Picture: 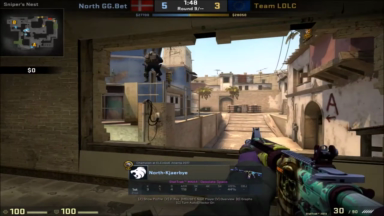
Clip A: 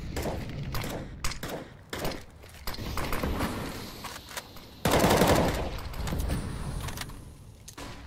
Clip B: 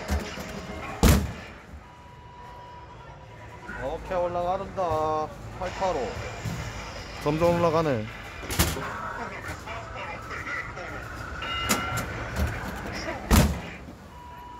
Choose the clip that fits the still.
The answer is A